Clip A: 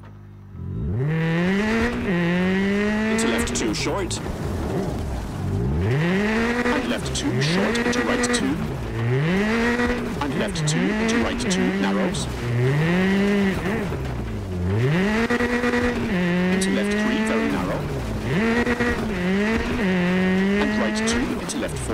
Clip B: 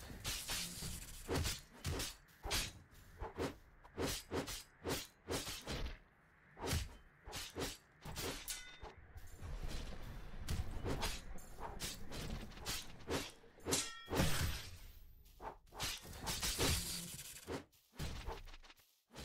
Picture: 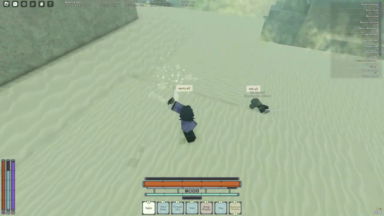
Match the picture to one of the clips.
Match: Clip B